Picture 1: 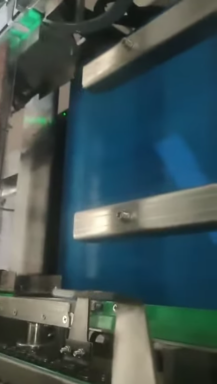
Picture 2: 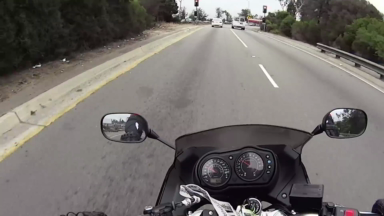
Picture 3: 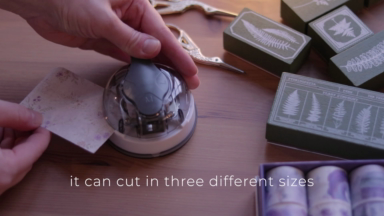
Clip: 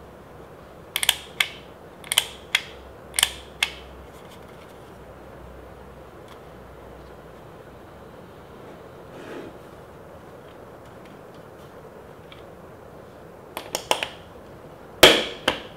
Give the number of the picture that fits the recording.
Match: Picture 3